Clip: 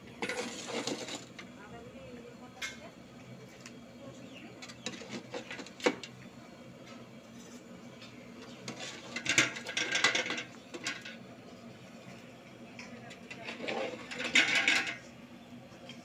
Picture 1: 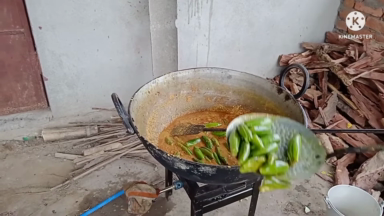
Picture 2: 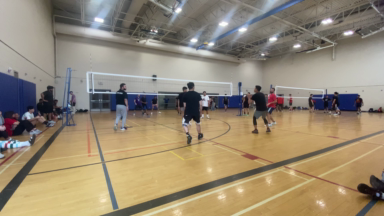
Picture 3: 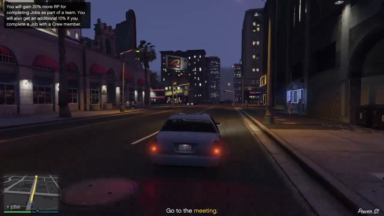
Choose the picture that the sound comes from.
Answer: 1